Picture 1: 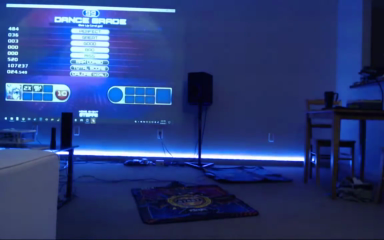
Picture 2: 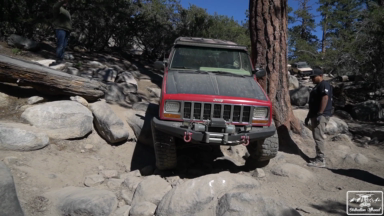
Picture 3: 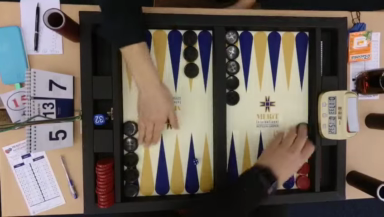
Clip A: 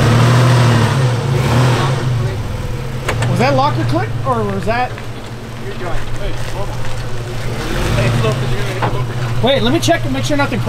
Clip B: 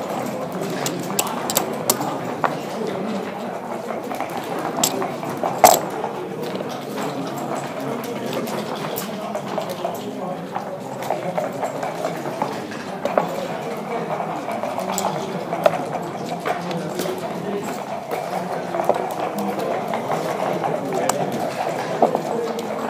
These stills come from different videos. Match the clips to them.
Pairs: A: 2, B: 3